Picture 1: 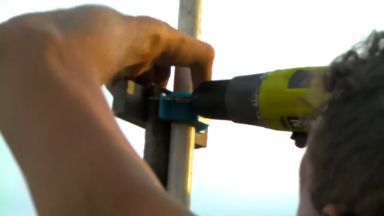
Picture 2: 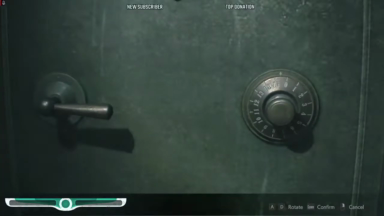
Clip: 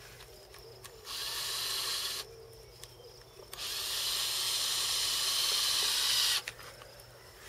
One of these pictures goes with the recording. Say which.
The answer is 1